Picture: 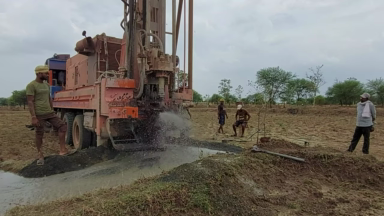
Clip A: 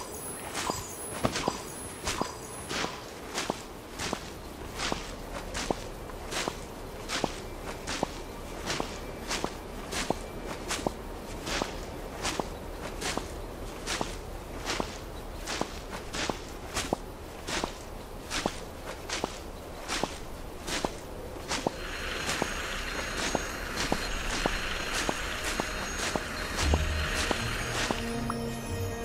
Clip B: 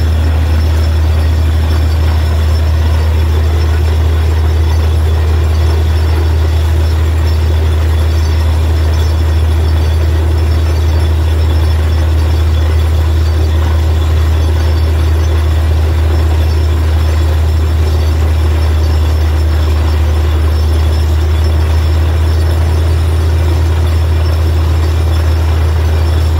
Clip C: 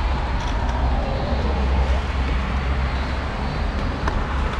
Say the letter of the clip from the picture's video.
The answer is B